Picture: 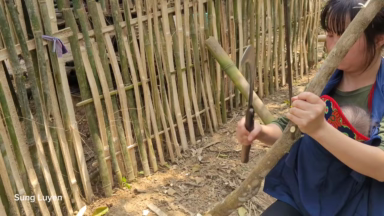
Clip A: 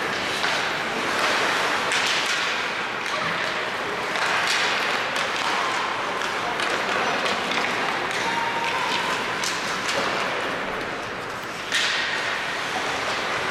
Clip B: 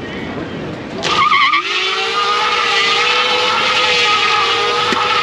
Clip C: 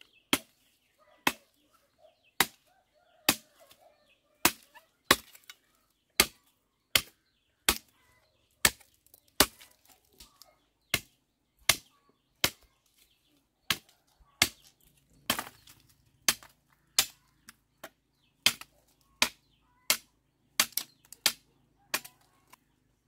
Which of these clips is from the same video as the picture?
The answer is C